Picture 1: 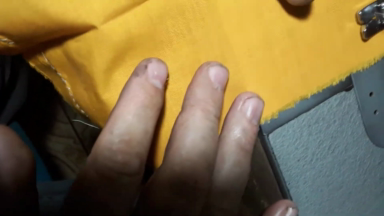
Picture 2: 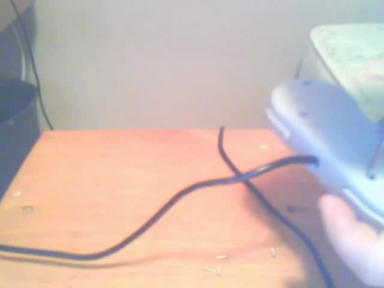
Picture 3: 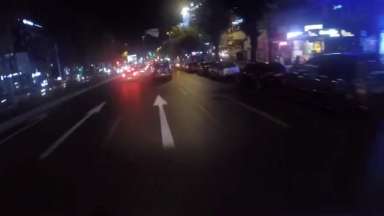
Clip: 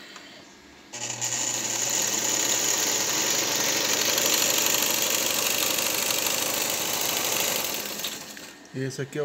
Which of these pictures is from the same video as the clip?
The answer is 1